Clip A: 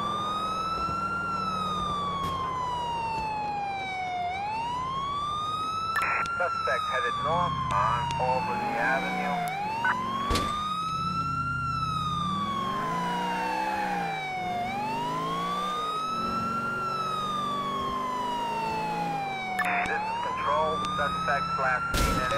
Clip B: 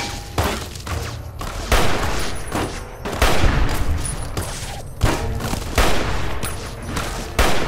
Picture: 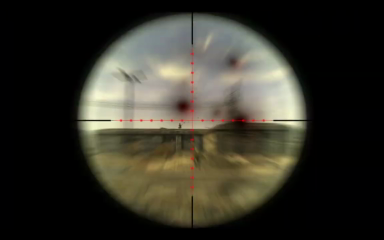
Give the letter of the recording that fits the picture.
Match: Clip B